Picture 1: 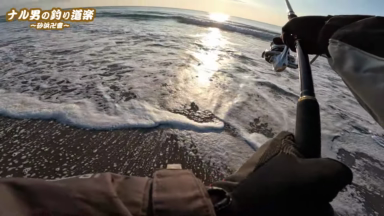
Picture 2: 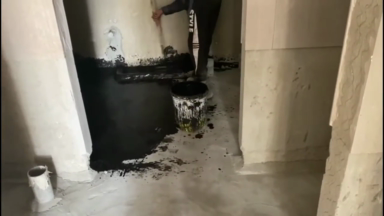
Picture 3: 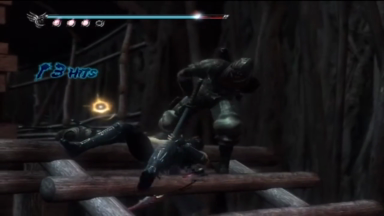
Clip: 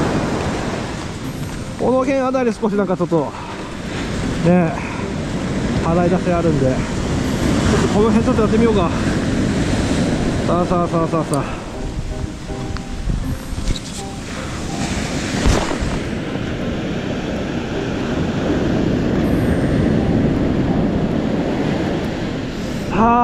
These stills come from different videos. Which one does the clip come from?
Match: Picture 1